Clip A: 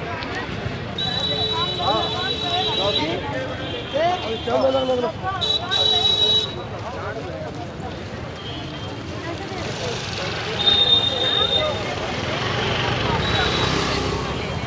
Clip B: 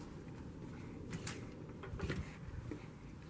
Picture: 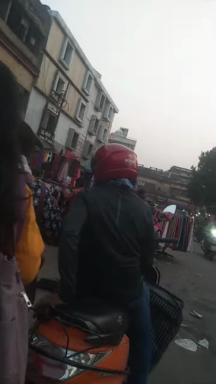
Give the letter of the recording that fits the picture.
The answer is A